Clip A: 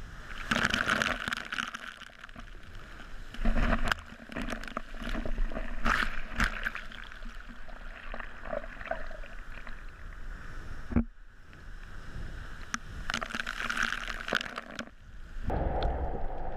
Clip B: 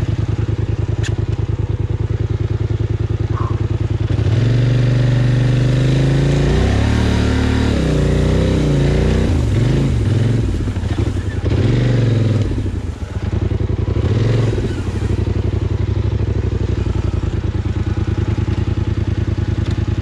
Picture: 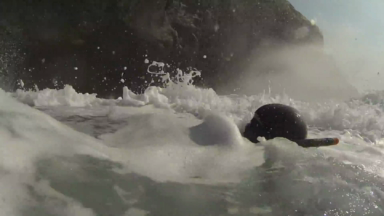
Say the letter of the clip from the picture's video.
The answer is A